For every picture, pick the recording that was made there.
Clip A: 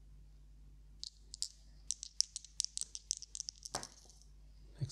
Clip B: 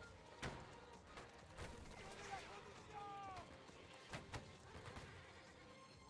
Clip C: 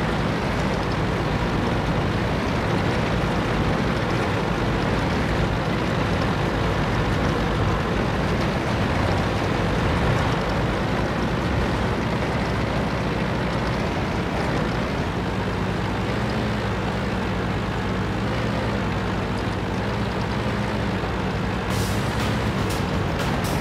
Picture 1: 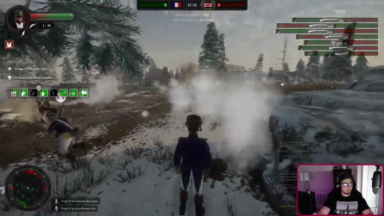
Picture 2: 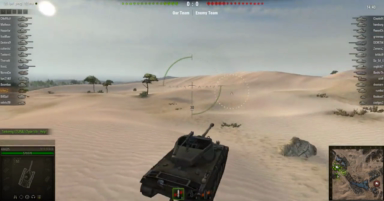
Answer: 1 B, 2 C